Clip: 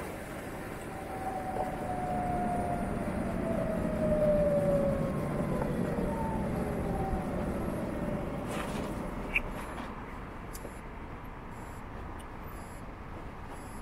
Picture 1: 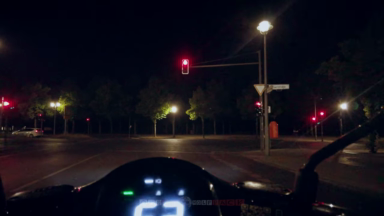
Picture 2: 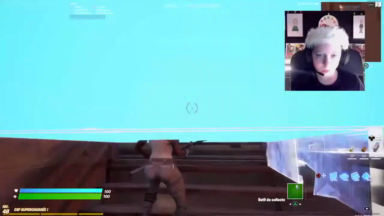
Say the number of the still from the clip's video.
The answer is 1